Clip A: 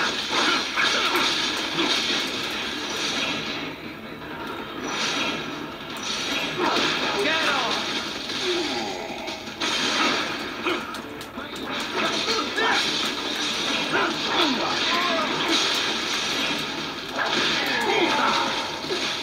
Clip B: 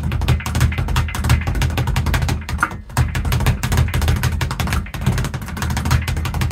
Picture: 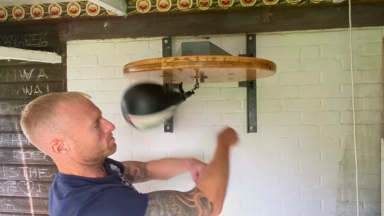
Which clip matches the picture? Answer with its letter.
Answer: B